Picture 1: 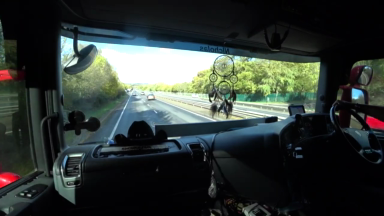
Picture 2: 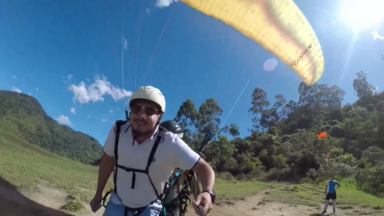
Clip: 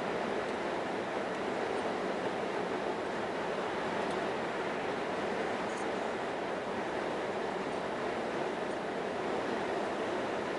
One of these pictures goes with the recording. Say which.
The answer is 1